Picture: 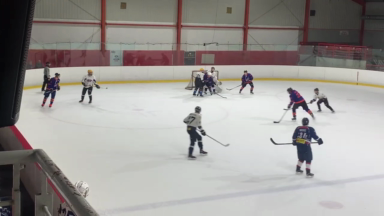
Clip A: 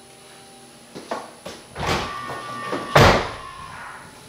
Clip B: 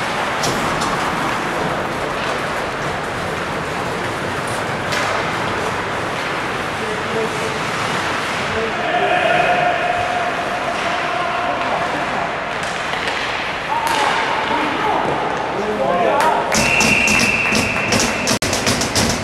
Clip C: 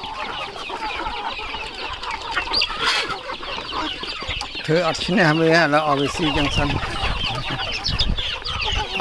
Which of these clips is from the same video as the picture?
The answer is B